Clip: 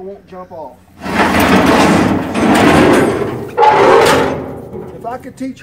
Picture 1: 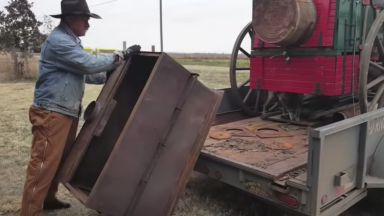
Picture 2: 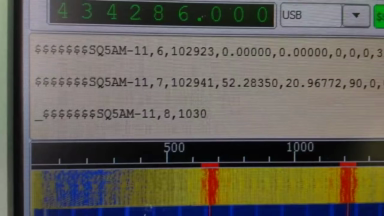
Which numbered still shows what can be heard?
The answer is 1